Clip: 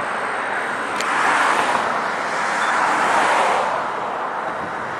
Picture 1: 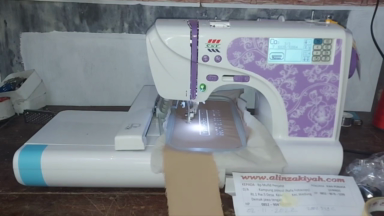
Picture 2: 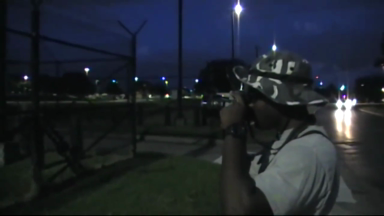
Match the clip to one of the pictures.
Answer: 2